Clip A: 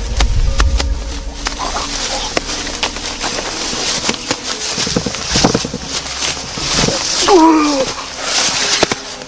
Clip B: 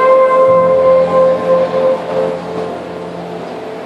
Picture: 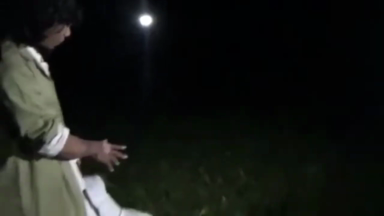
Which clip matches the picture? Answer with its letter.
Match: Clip A